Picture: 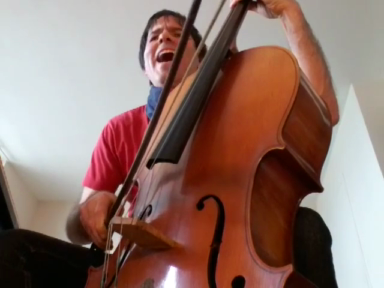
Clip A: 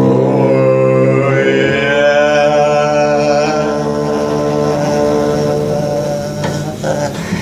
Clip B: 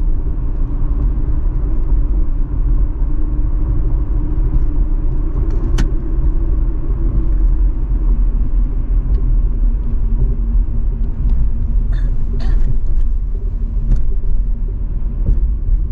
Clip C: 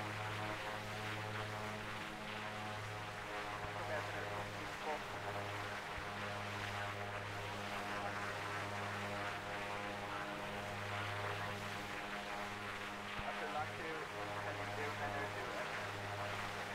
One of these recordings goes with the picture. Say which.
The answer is A